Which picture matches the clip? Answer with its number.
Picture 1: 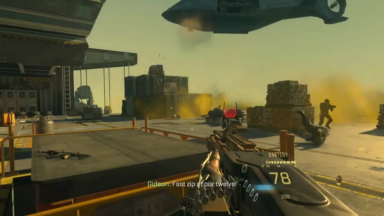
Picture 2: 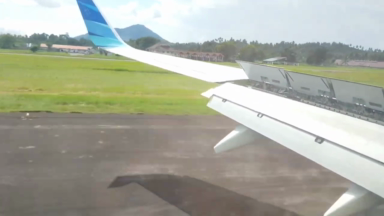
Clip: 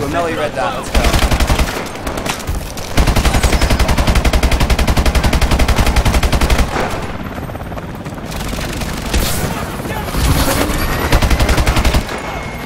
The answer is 1